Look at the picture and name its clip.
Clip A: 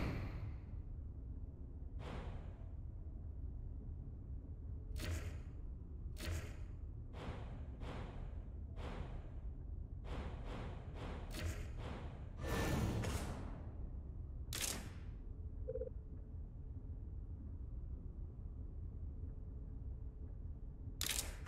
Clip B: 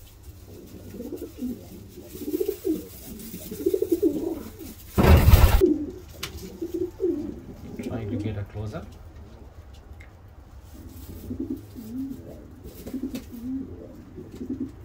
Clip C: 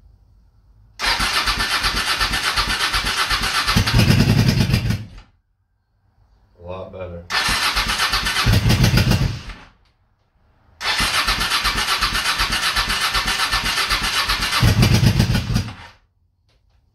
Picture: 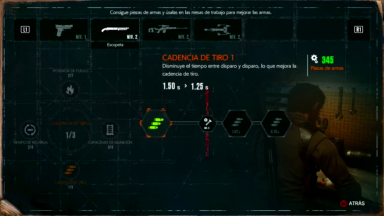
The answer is A